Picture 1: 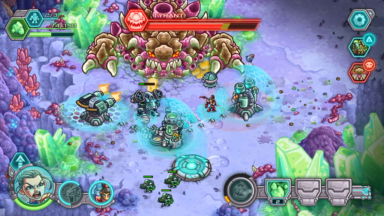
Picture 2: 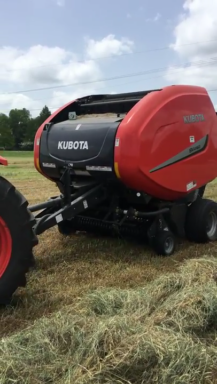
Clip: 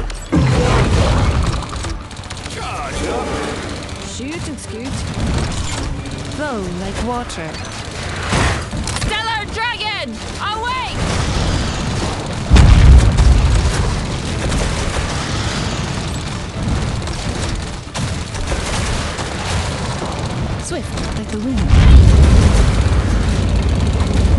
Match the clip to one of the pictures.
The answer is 1